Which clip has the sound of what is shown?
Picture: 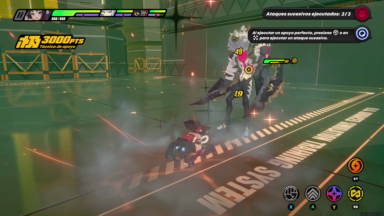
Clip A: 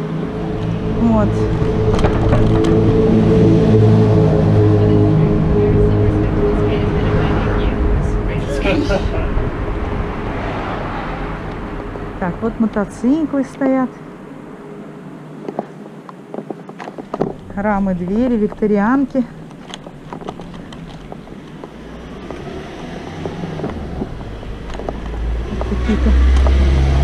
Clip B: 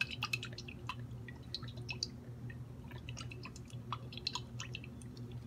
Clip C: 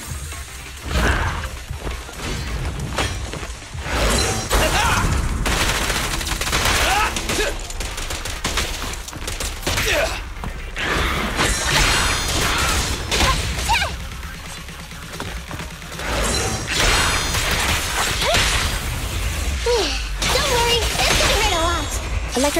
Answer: C